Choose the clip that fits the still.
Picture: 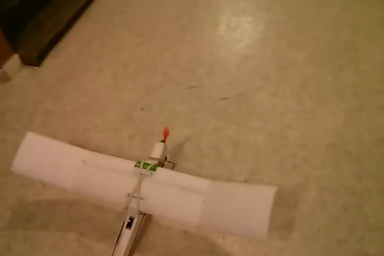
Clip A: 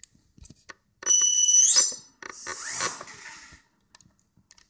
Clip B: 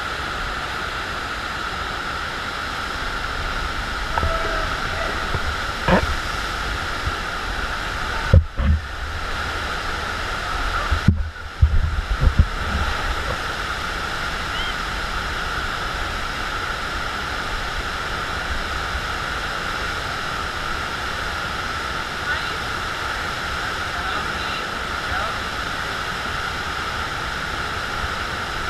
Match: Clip A